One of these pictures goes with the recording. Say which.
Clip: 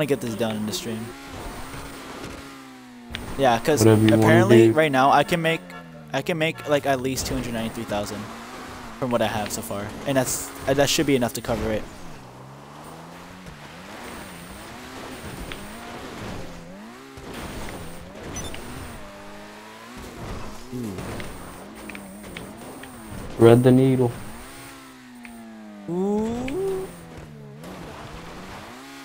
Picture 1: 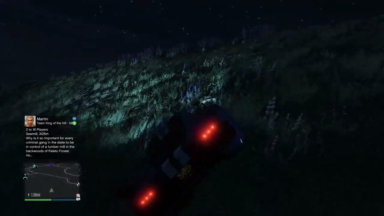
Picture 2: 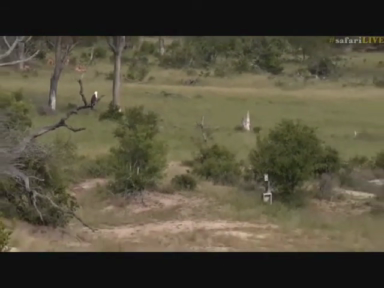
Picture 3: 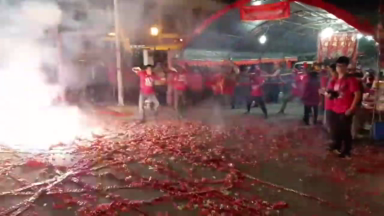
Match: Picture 1